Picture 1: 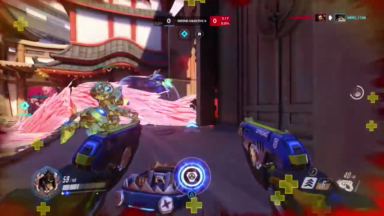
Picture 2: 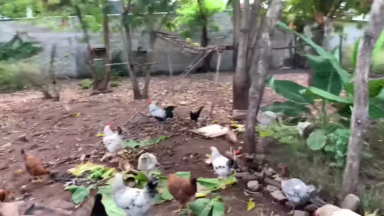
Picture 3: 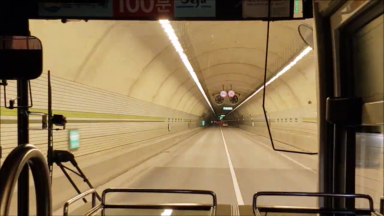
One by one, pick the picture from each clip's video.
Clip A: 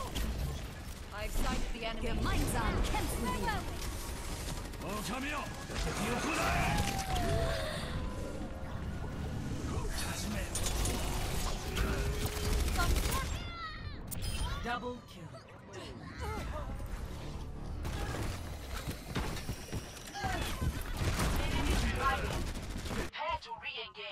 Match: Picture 1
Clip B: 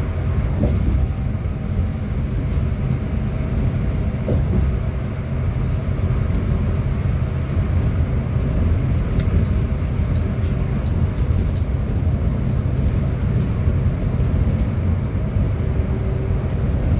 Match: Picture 3